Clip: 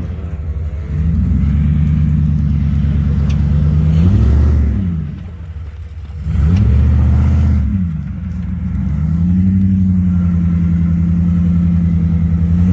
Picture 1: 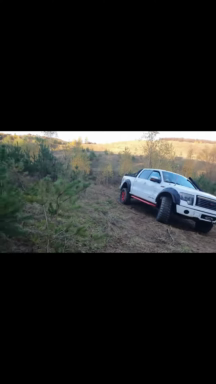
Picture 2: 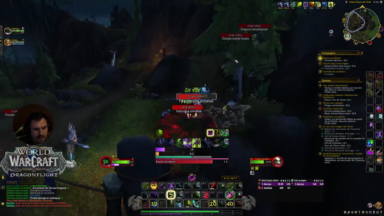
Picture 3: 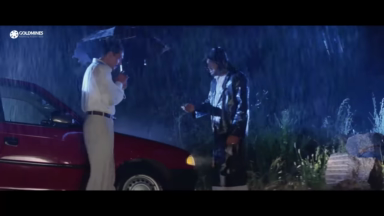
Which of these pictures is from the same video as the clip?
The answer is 1